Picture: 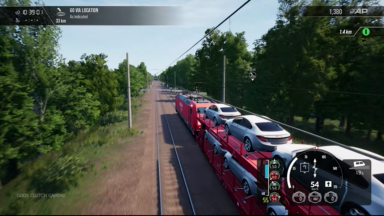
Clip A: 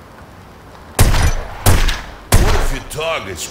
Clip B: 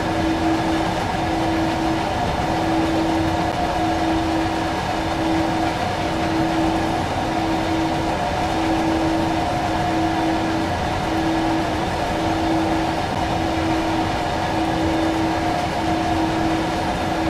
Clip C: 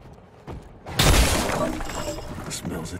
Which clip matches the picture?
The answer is B